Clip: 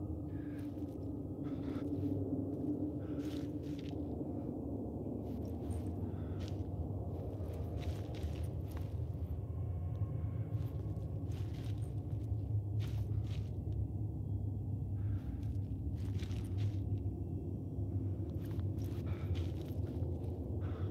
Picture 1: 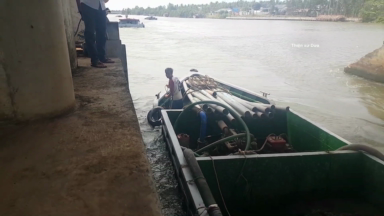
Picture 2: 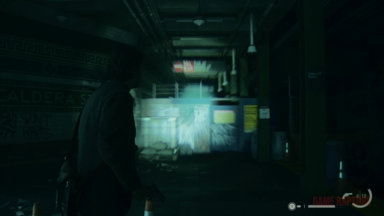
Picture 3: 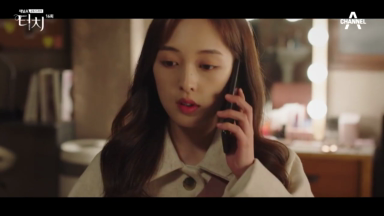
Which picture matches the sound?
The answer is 2